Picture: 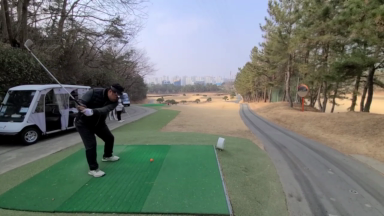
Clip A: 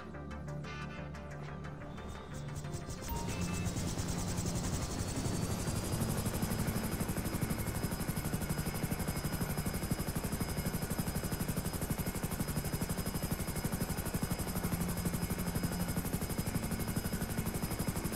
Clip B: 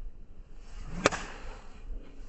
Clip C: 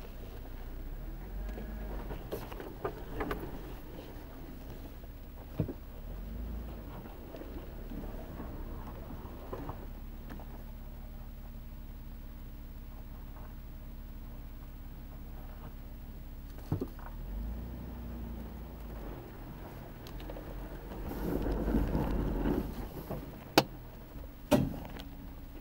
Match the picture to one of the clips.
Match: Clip B